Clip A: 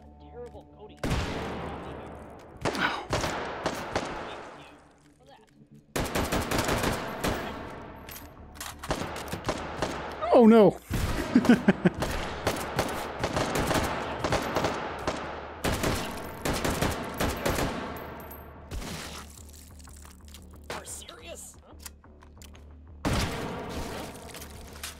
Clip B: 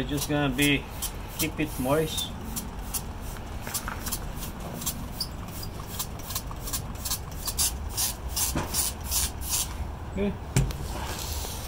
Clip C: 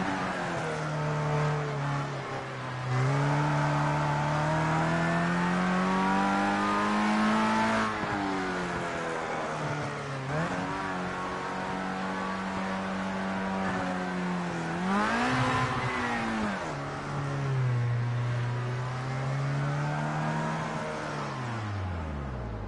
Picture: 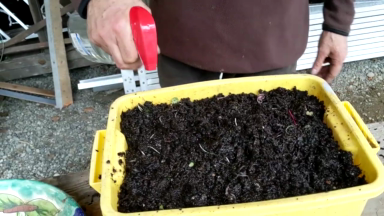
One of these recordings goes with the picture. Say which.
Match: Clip B